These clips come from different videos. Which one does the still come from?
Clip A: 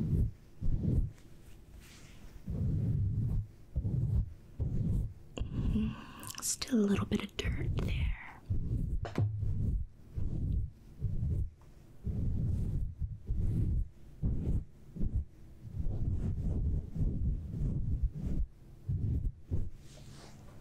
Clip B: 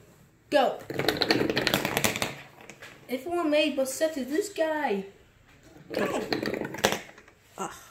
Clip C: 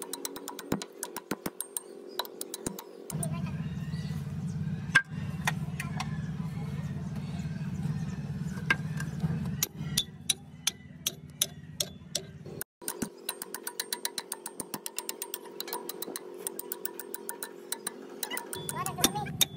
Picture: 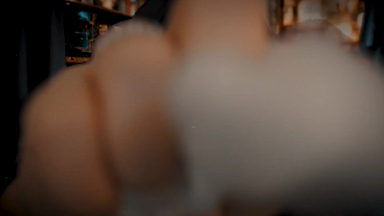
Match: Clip A